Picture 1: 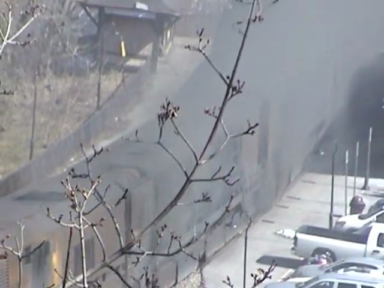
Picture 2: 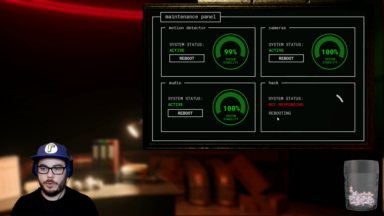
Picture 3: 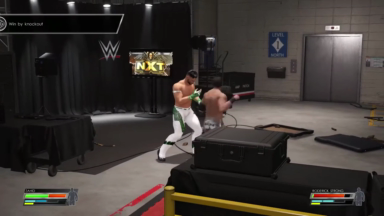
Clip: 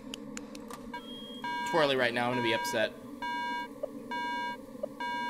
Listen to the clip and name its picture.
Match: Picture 2